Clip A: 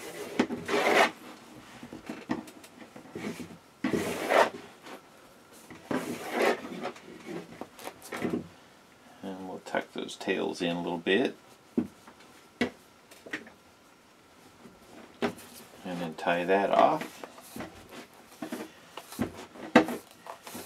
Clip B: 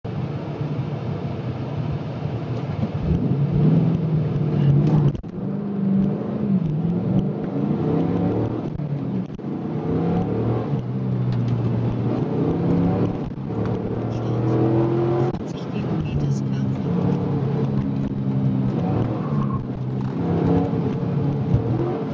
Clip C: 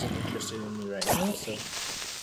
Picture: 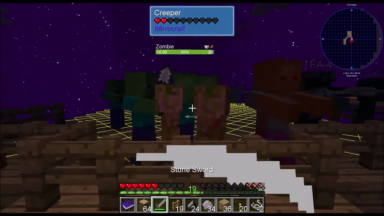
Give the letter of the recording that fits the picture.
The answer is C